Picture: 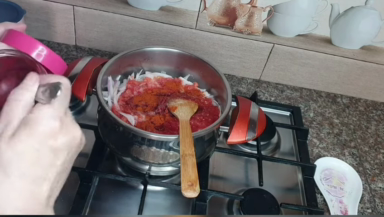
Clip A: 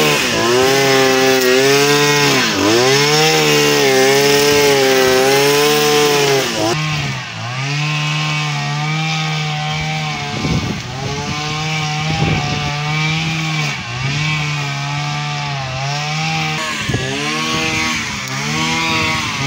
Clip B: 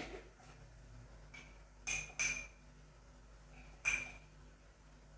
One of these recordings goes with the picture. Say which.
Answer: B